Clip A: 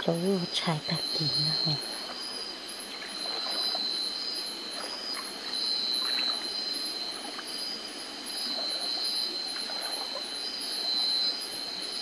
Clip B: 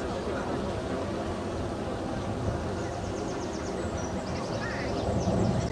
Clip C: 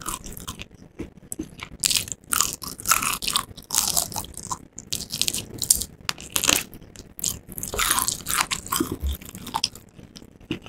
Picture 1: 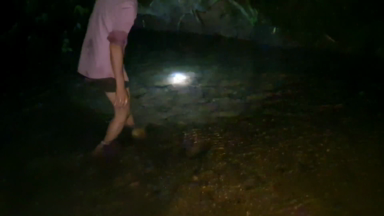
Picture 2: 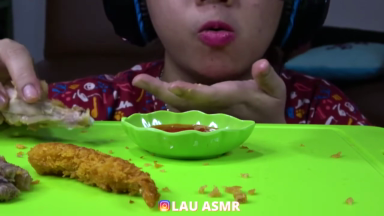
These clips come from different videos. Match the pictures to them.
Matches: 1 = A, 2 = C